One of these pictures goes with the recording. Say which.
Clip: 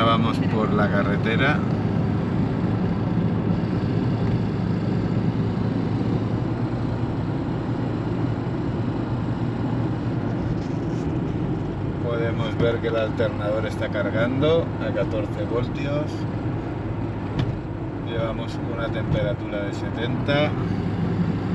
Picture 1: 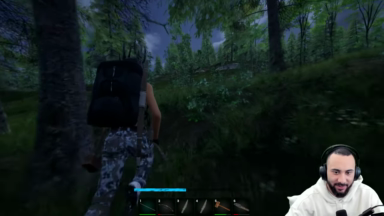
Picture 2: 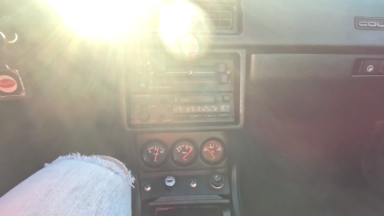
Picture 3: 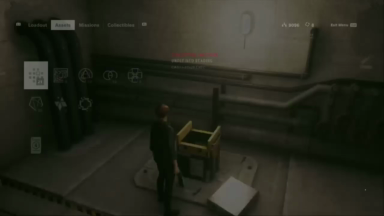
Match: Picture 2